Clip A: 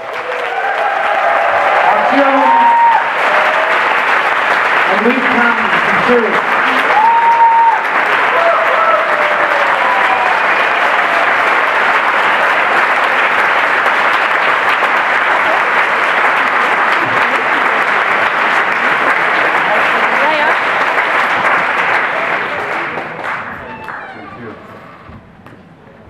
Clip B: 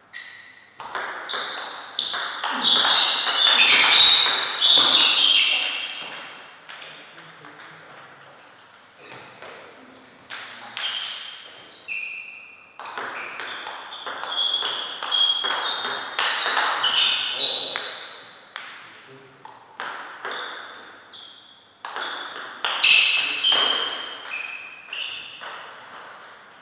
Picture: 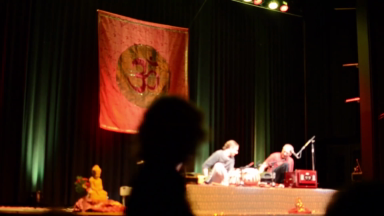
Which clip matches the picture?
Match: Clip A